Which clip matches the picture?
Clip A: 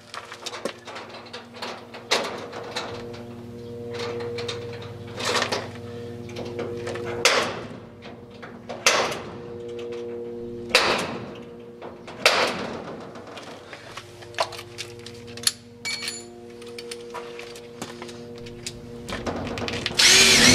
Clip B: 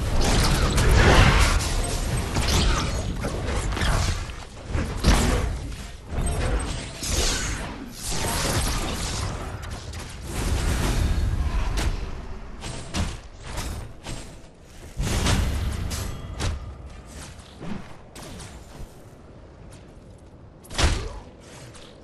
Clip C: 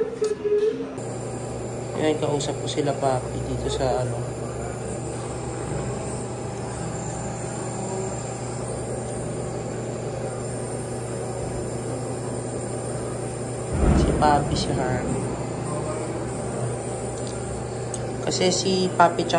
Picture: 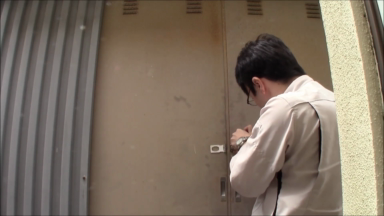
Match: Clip A